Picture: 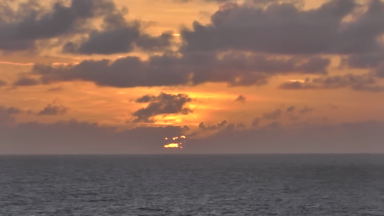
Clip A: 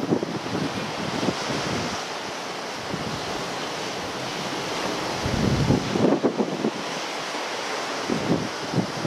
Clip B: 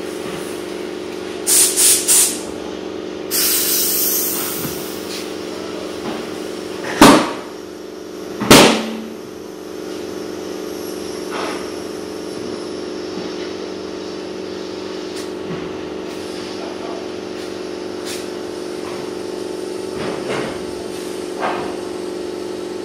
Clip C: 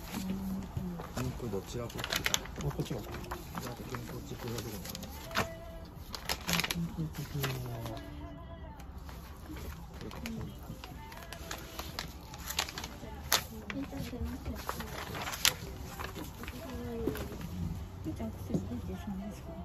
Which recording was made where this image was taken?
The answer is A